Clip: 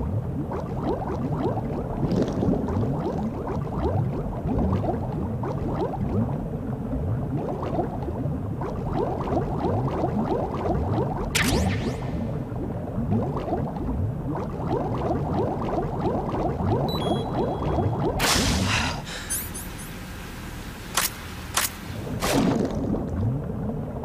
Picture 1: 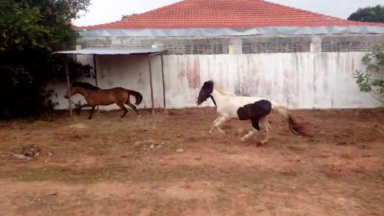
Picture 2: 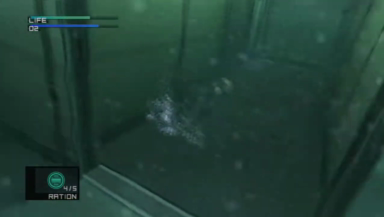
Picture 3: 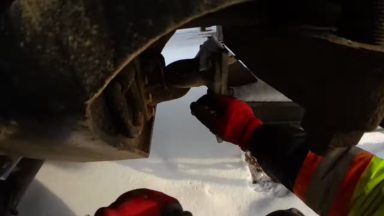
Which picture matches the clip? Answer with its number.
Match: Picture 2